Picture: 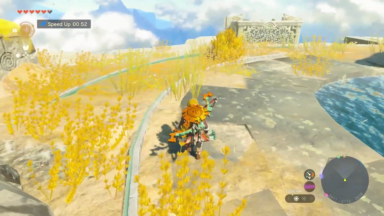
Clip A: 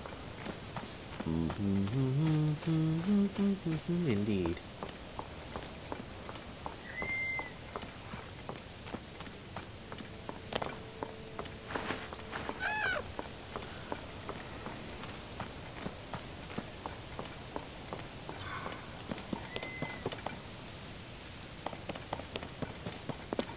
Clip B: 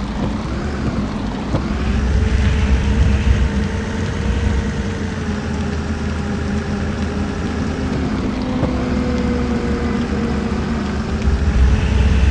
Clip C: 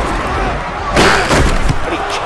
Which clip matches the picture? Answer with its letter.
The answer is A